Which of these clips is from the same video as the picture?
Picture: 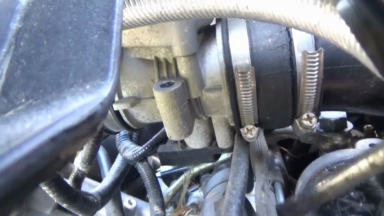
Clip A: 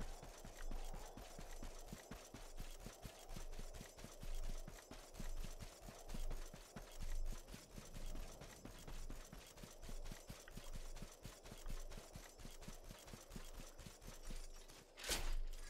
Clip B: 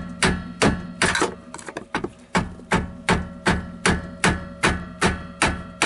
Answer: B